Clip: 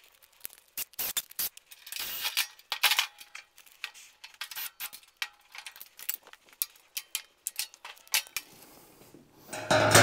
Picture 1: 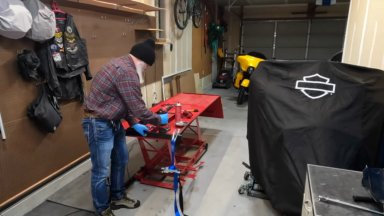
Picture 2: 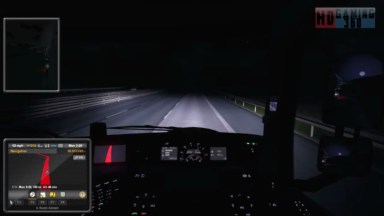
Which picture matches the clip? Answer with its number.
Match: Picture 1